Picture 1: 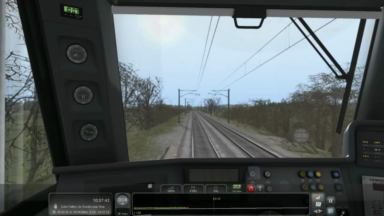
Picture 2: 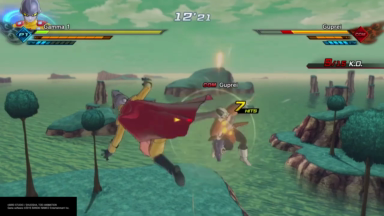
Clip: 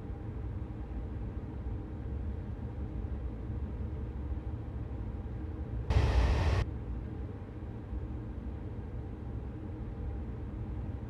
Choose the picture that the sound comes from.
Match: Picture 1